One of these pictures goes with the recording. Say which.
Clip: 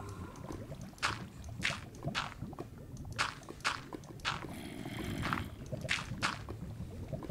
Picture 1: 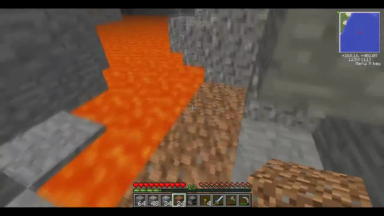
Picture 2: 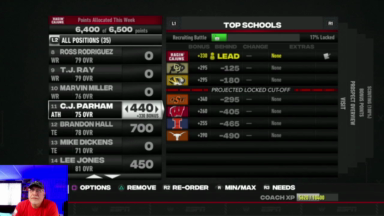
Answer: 1